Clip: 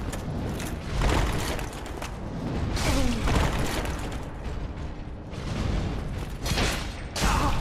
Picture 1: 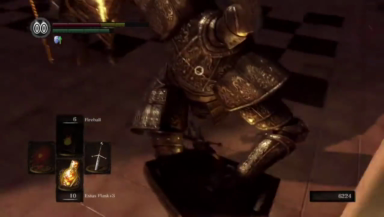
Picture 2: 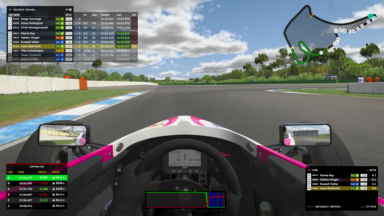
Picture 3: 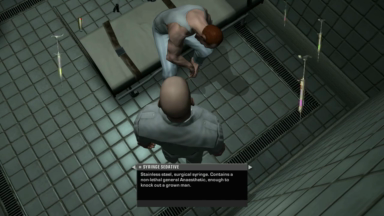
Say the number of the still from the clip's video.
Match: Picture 1